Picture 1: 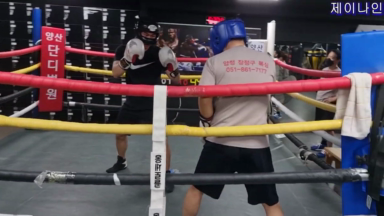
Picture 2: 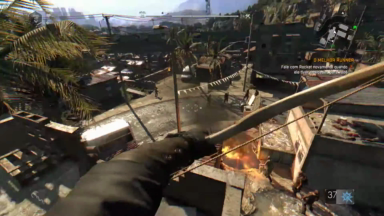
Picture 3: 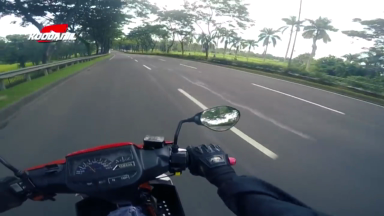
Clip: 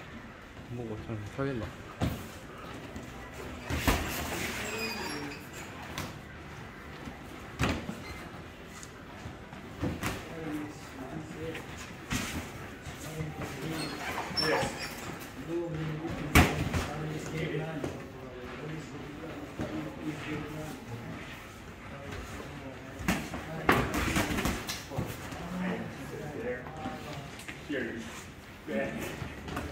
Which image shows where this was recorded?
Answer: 1